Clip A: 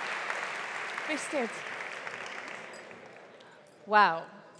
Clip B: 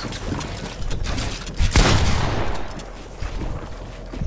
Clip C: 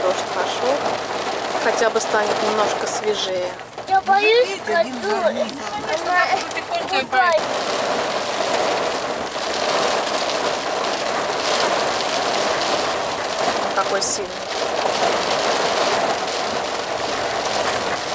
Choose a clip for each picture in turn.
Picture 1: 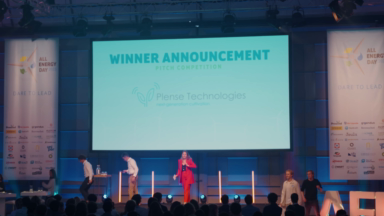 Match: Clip A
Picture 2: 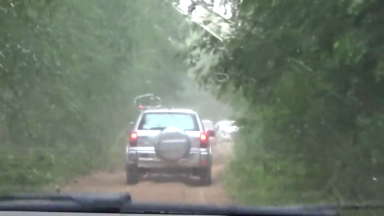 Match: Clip C